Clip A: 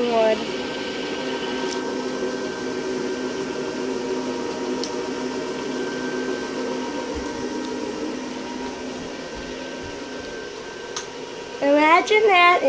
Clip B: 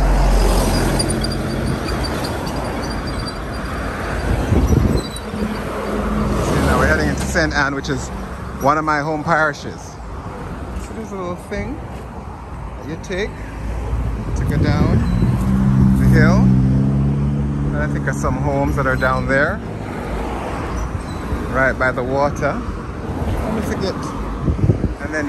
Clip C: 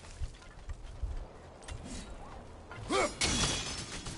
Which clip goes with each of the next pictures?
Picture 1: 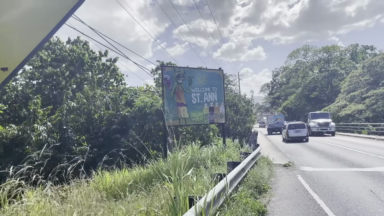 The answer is B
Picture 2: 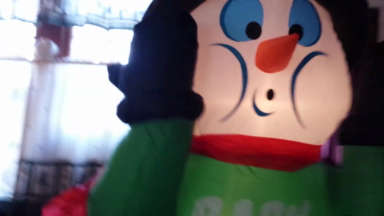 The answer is A